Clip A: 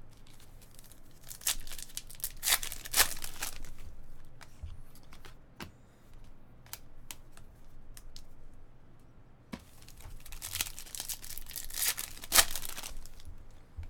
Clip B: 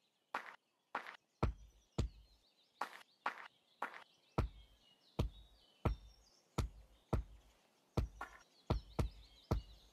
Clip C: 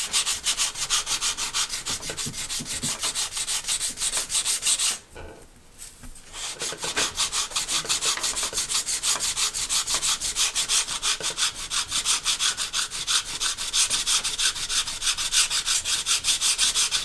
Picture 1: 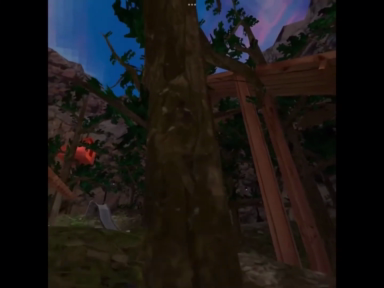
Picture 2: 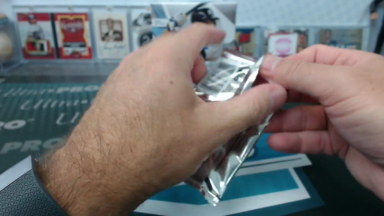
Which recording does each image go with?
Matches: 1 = B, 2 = A